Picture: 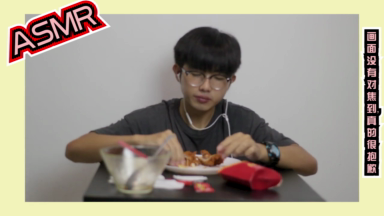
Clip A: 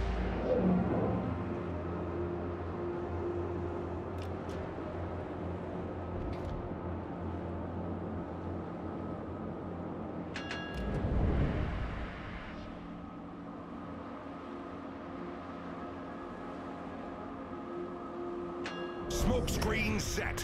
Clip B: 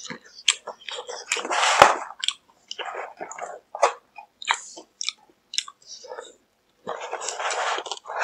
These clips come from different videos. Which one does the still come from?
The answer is B